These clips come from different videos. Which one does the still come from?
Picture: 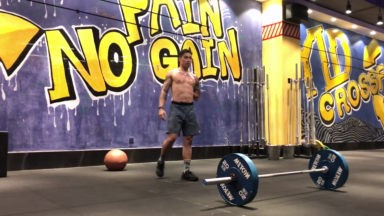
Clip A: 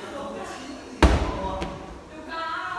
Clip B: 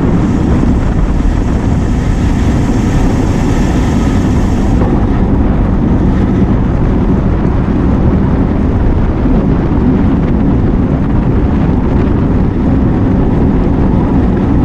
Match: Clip A